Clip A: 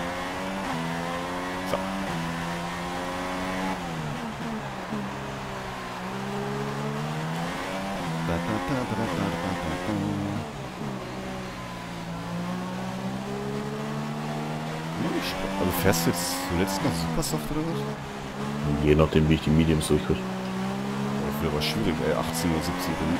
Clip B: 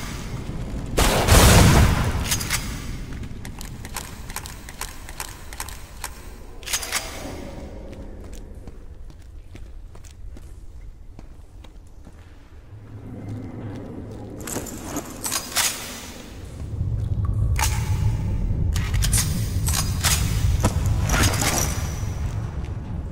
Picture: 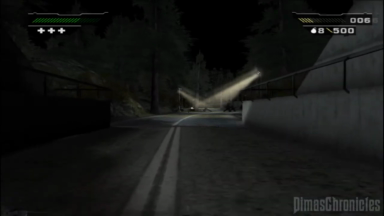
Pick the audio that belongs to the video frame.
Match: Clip B